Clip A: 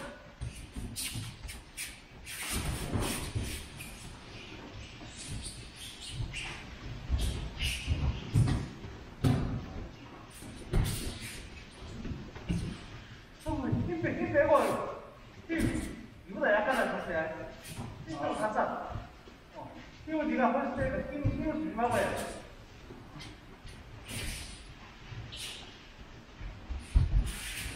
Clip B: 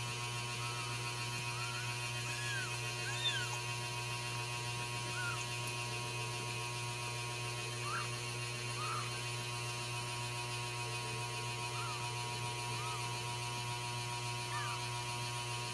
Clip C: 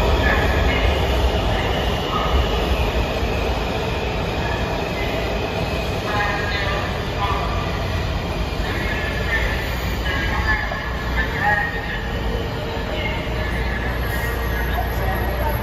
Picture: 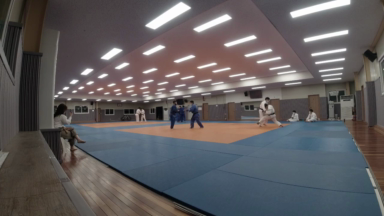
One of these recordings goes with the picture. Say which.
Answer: A